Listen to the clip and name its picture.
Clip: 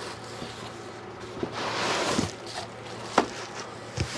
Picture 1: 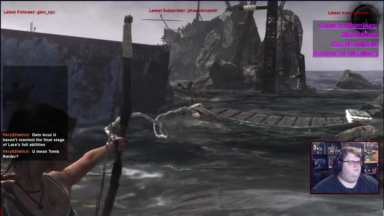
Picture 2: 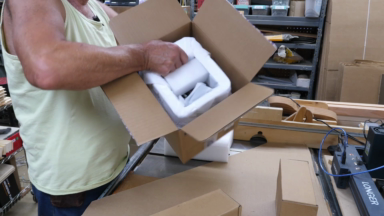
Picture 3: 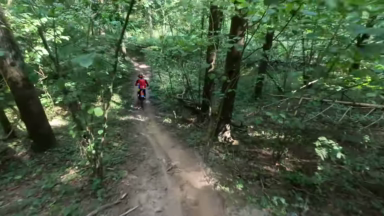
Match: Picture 2